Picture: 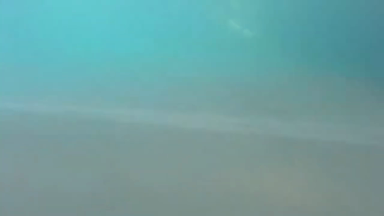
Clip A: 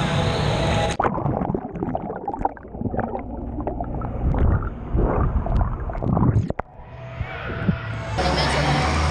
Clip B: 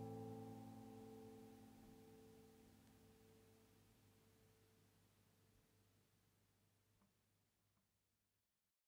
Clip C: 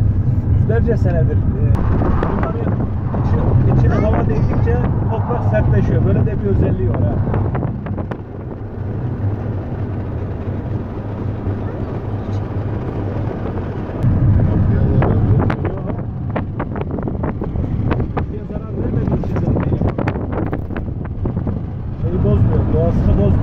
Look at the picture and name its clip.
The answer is A